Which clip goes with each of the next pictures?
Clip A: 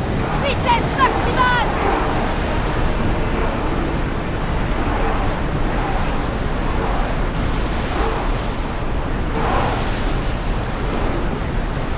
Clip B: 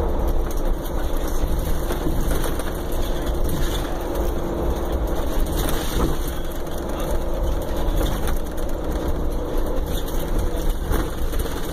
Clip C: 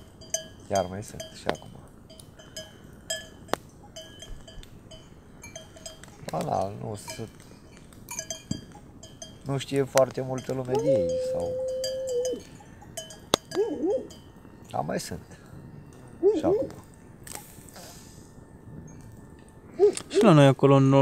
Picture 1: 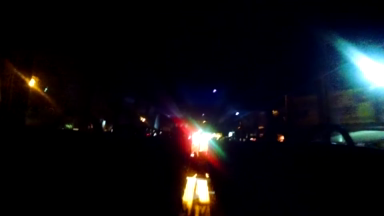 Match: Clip B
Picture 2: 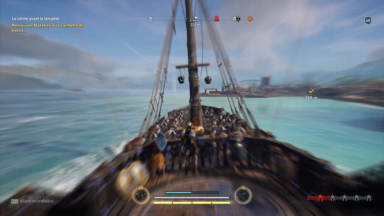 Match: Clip A